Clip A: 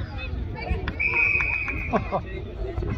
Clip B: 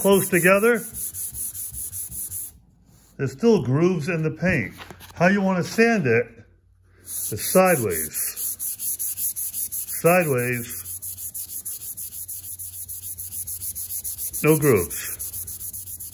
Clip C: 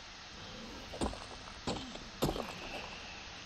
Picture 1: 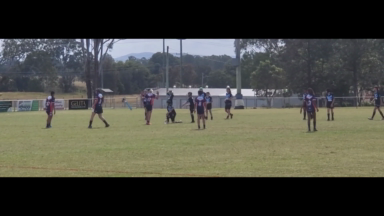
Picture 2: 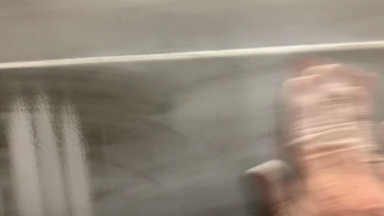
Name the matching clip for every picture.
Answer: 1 A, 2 B